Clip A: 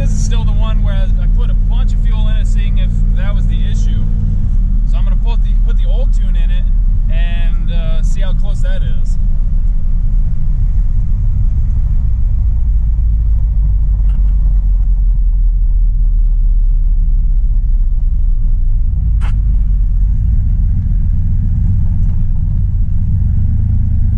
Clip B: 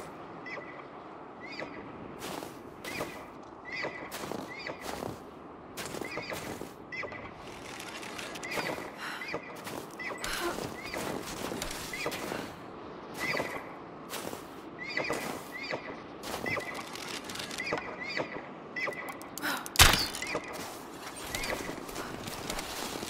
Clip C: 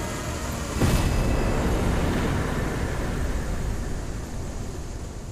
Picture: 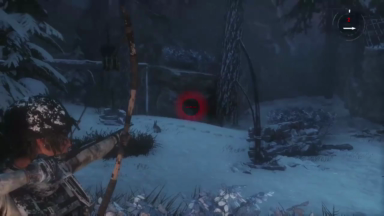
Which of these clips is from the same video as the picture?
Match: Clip B